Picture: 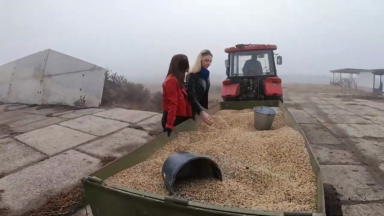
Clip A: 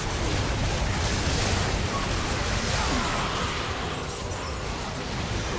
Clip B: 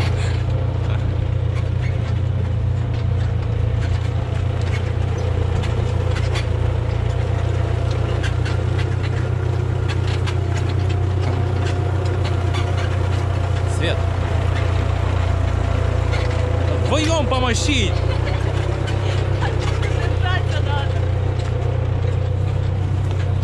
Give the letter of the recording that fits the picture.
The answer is B